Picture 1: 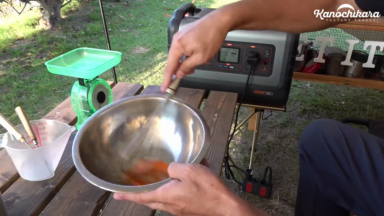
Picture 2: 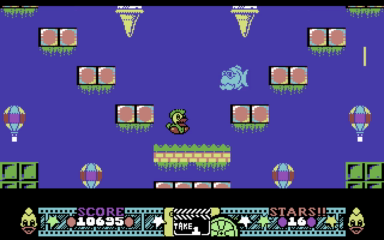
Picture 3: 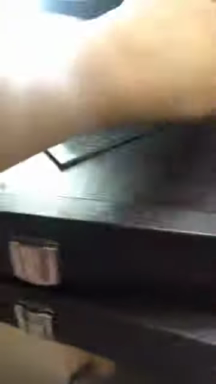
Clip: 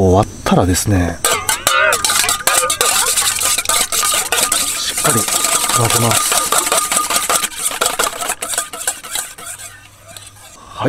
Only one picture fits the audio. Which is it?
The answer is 1